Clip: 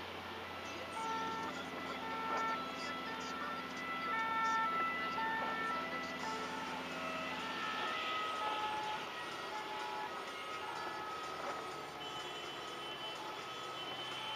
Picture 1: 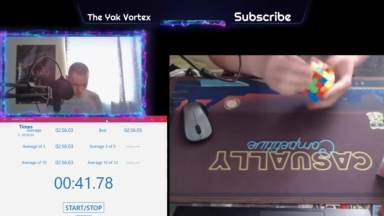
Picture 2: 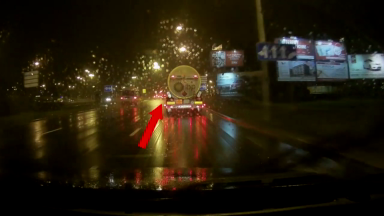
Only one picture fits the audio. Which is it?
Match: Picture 2